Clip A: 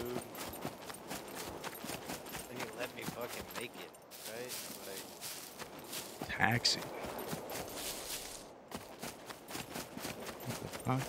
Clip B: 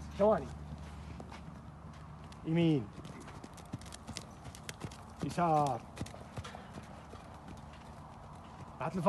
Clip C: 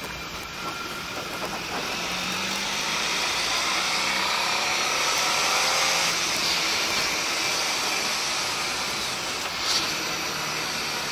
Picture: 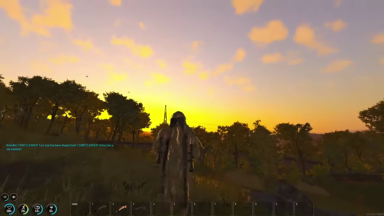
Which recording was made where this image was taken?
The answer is A